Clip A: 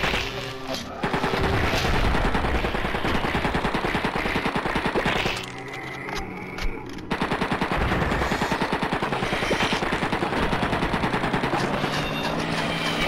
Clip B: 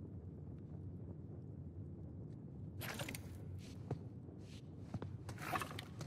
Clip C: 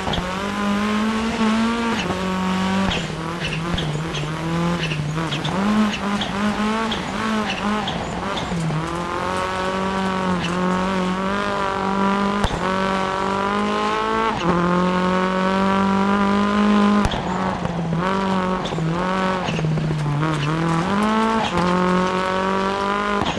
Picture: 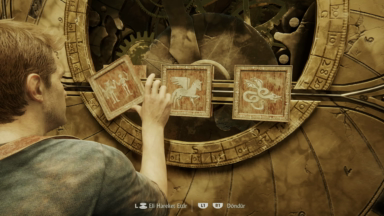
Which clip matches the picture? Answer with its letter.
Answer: B